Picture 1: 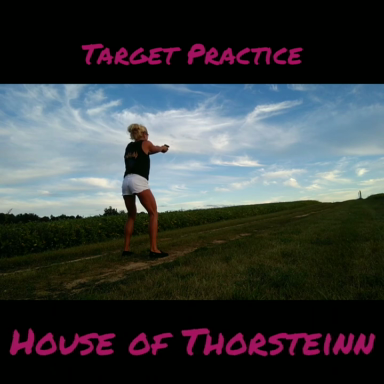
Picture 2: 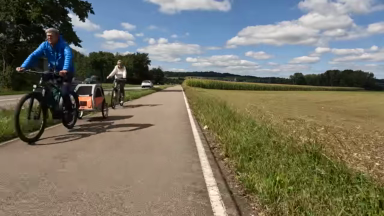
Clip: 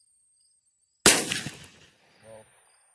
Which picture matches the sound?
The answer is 1